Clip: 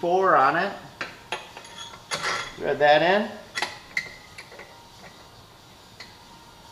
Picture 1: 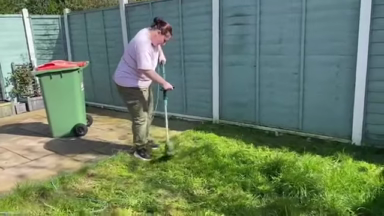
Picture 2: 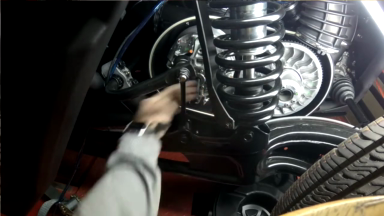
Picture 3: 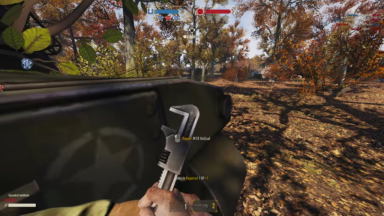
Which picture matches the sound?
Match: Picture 2